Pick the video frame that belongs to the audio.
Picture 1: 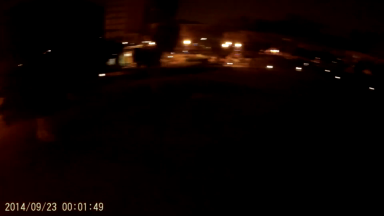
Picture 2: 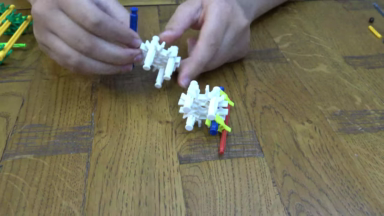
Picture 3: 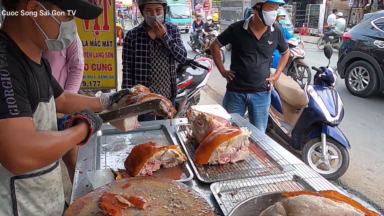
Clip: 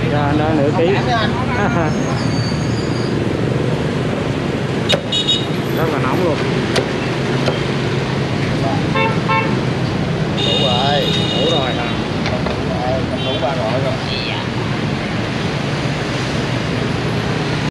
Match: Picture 3